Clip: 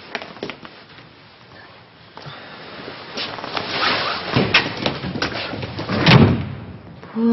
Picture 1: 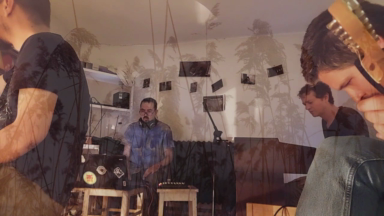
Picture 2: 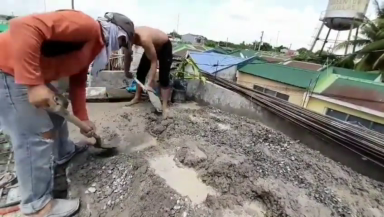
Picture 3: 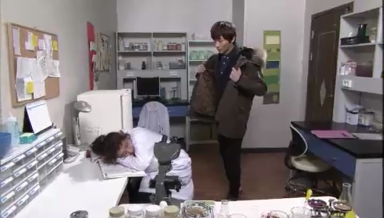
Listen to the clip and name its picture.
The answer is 3